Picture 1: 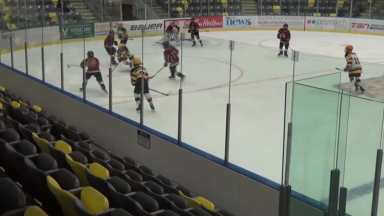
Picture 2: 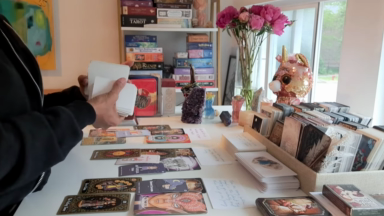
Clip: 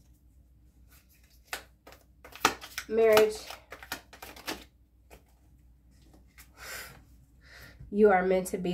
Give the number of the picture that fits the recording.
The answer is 2